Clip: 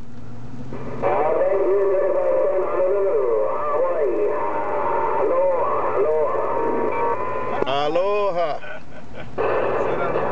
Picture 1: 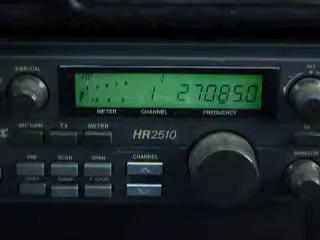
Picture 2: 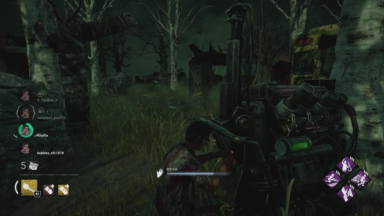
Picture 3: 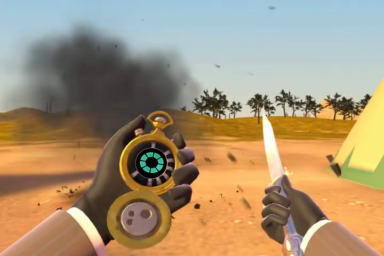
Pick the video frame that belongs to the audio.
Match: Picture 1